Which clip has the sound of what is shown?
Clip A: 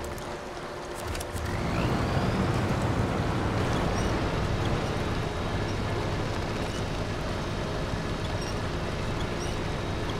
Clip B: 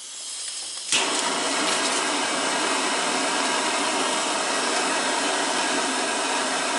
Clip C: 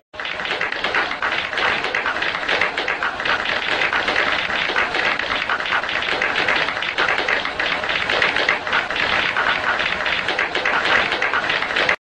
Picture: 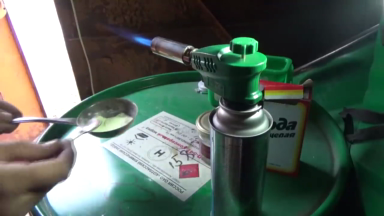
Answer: B